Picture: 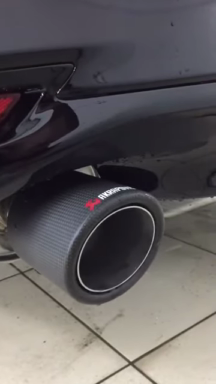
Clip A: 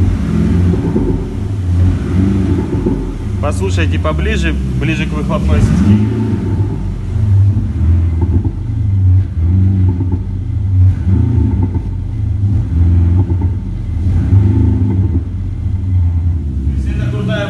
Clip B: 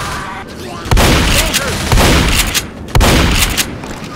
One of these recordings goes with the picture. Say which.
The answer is A